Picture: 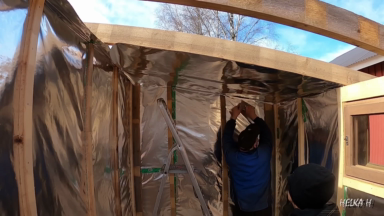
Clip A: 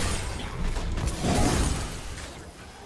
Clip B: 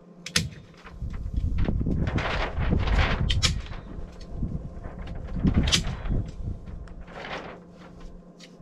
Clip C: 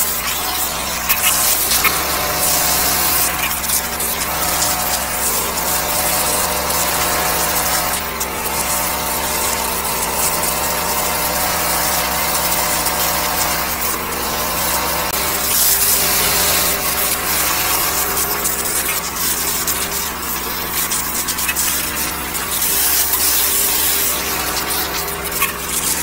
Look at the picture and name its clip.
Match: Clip B